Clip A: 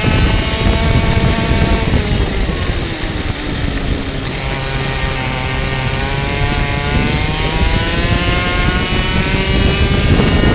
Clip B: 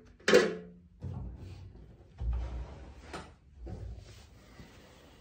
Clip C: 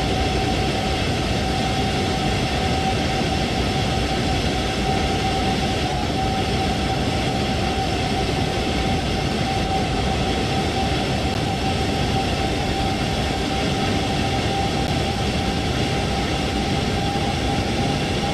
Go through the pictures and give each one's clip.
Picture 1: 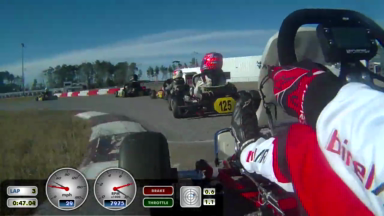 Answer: A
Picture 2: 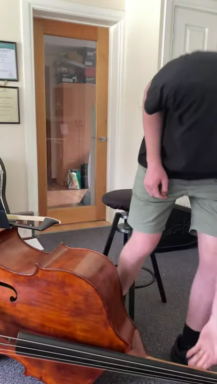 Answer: B